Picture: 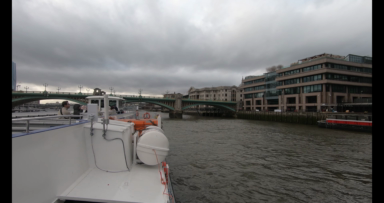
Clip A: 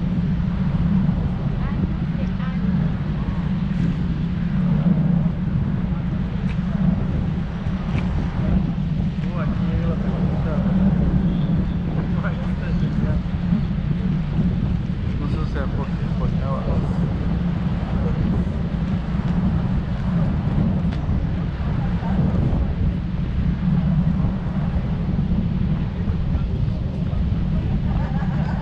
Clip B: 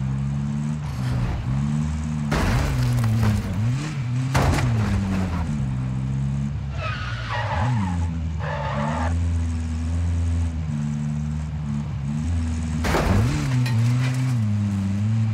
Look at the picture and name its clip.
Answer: A